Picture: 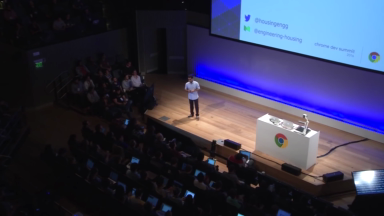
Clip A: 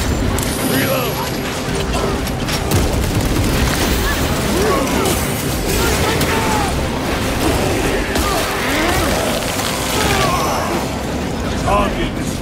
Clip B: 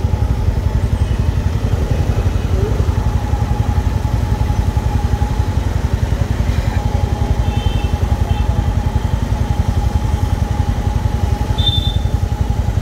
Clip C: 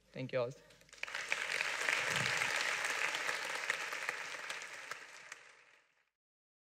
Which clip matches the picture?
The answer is C